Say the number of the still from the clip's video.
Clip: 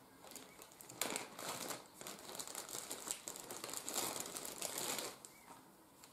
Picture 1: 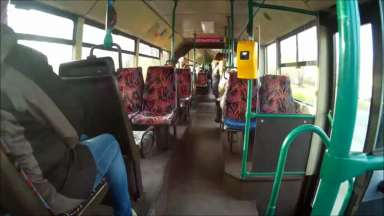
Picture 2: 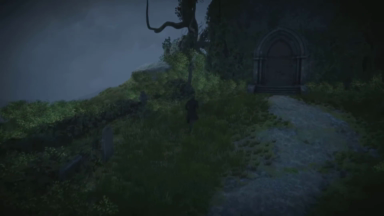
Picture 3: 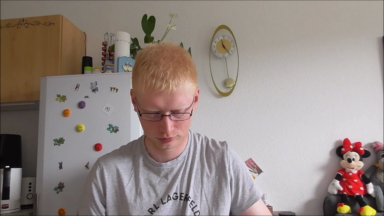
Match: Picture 3